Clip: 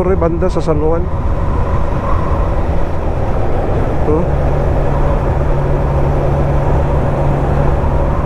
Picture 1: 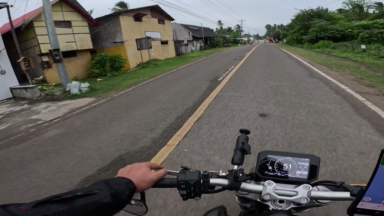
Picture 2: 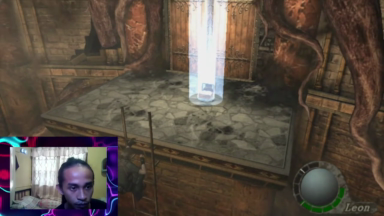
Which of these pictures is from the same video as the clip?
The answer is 1